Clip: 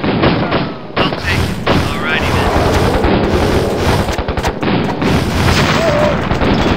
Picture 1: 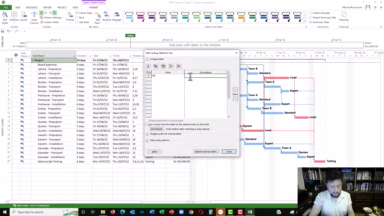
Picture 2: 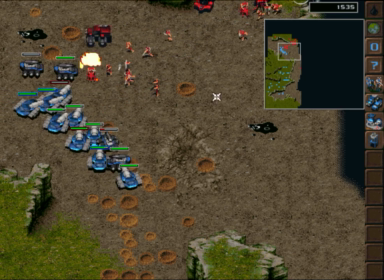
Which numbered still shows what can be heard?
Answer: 2